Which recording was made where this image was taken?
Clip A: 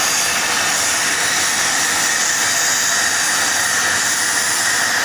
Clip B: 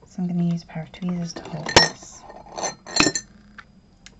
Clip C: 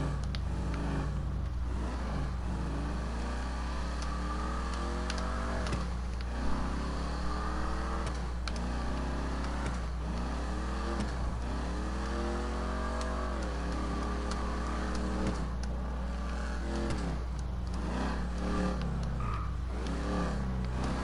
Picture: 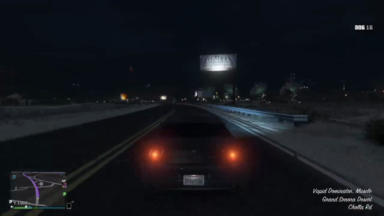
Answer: C